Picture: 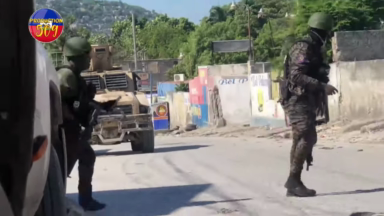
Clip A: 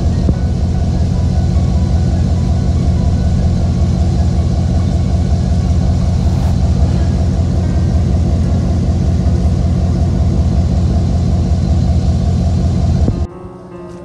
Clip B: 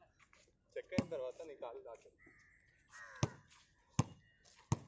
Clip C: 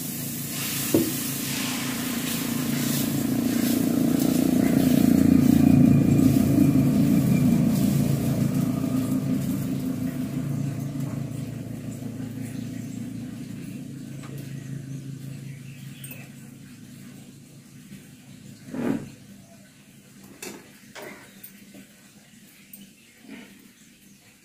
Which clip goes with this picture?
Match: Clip A